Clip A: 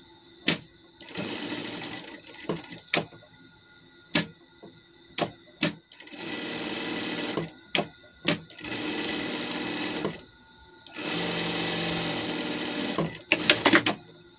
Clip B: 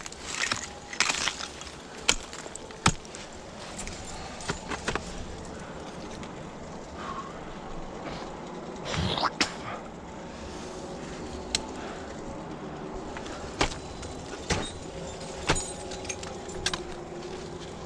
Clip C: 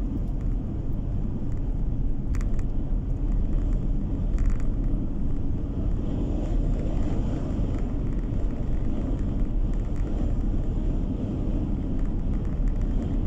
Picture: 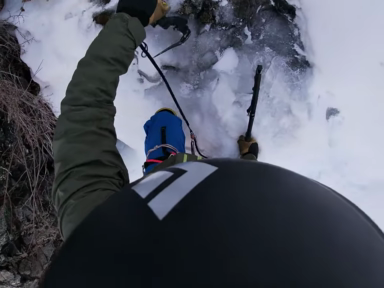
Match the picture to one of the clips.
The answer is B